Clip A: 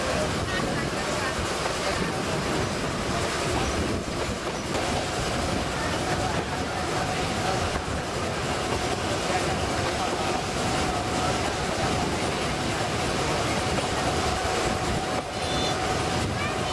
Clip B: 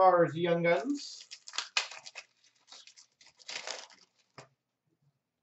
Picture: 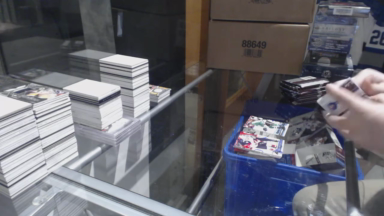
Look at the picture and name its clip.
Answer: B